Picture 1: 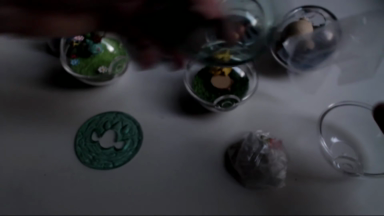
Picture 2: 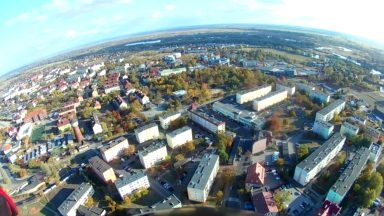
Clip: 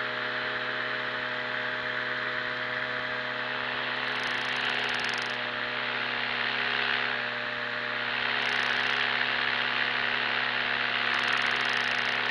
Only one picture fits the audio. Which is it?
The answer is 2